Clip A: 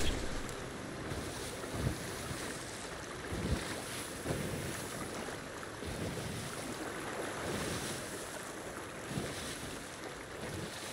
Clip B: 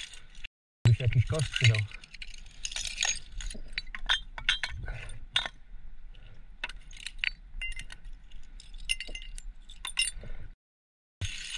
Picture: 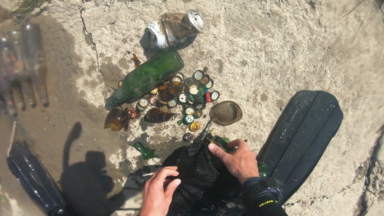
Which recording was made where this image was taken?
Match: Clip B